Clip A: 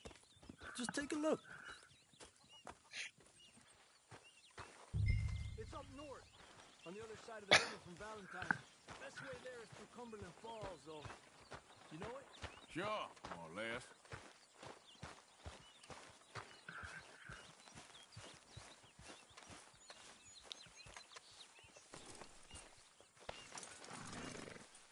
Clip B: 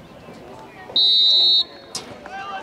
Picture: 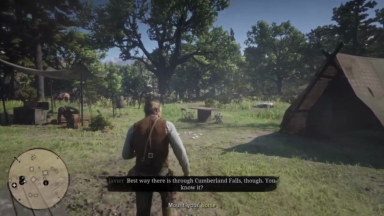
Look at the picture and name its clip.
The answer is A